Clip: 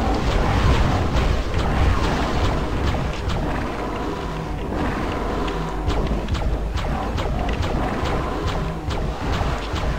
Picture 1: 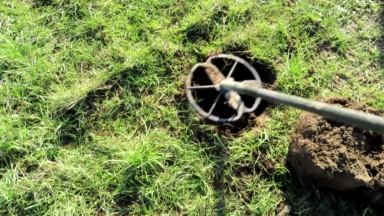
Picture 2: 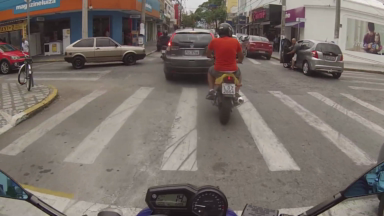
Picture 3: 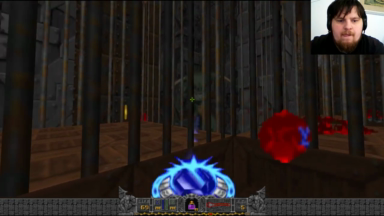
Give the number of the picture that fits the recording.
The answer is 3